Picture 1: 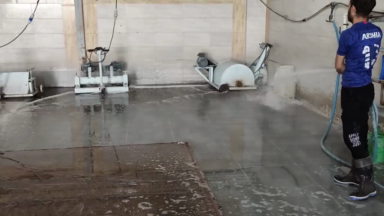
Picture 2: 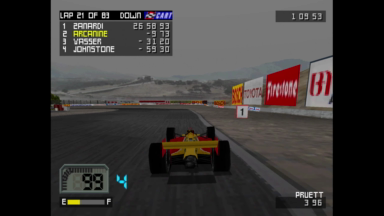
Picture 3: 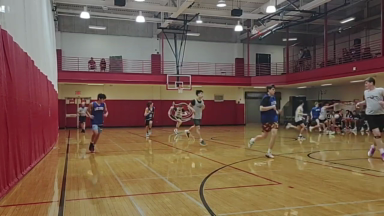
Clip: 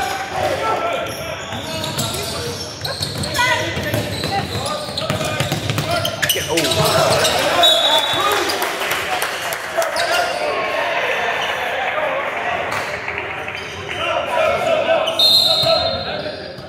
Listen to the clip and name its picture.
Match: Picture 3